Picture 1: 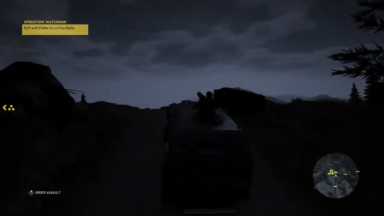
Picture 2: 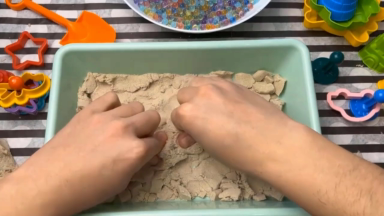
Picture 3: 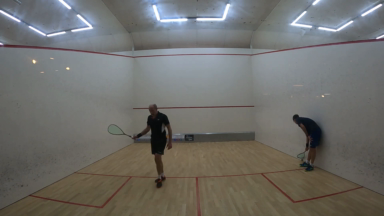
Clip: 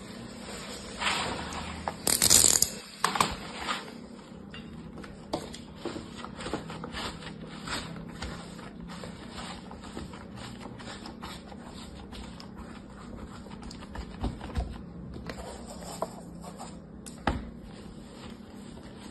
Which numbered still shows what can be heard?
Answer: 2